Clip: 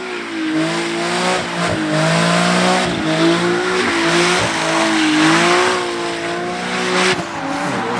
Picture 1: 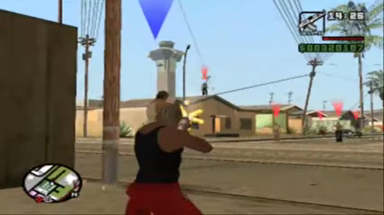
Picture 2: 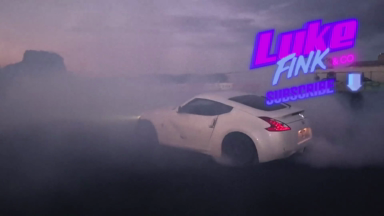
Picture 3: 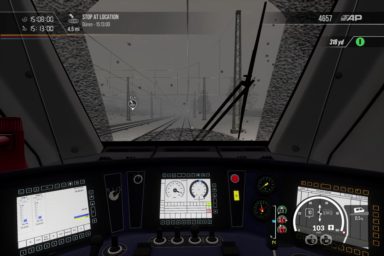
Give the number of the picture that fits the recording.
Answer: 2